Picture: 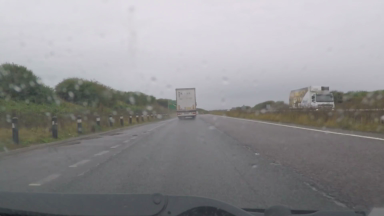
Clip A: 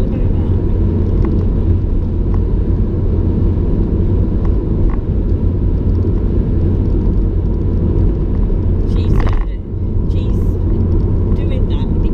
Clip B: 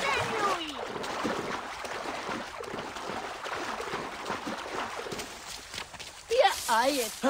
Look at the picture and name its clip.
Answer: A